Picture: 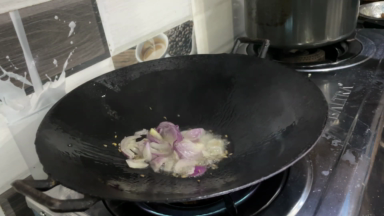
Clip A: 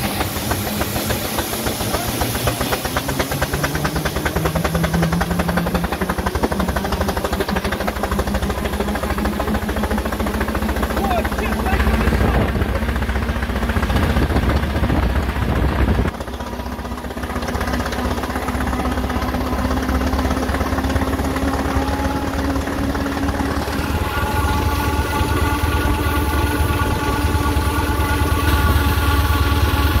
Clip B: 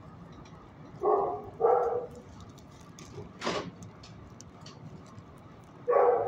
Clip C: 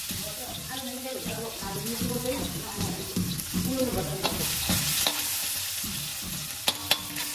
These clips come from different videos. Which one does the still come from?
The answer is C